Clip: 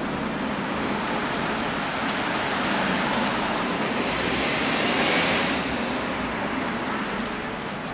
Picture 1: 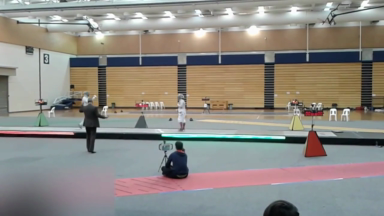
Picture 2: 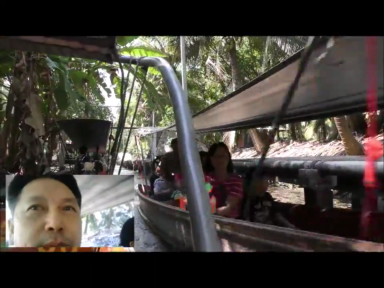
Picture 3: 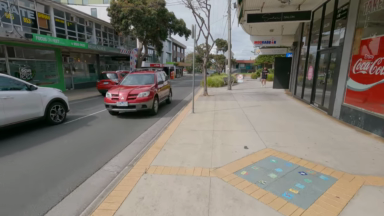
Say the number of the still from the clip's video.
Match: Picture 3